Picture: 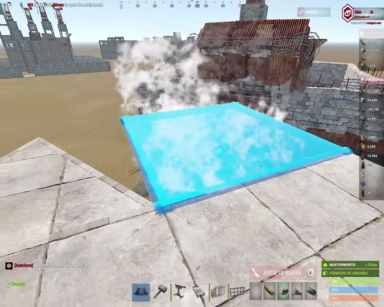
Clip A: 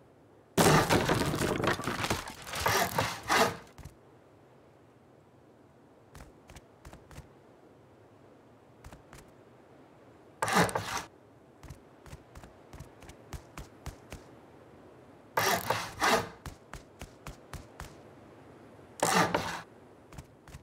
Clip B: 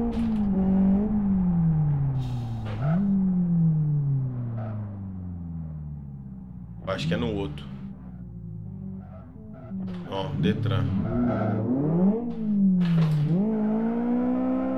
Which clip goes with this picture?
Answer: A